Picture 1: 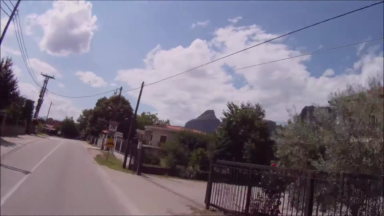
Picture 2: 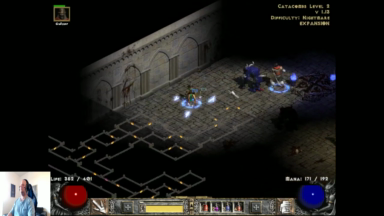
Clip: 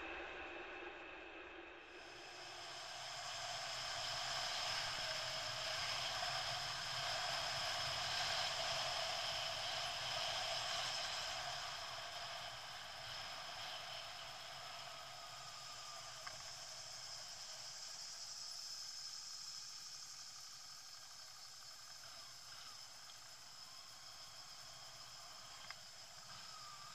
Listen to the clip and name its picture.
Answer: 1